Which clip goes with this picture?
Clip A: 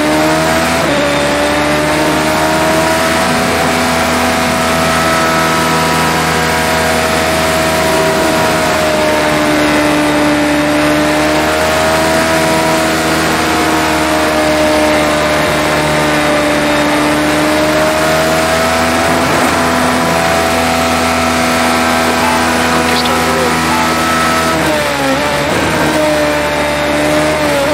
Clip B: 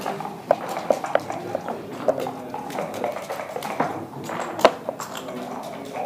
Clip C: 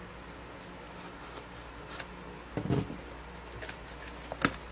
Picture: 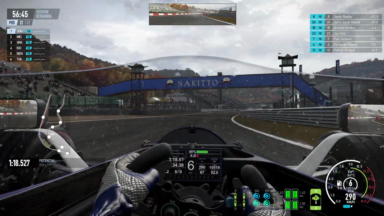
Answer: A